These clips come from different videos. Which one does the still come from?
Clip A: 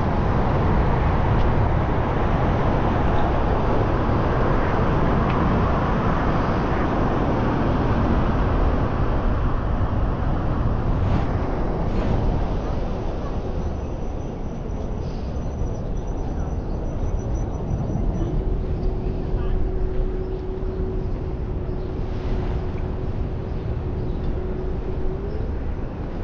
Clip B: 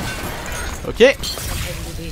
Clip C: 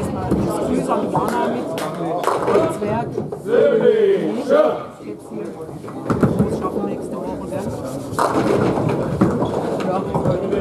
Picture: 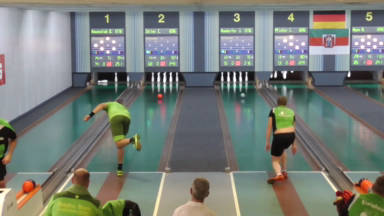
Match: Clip C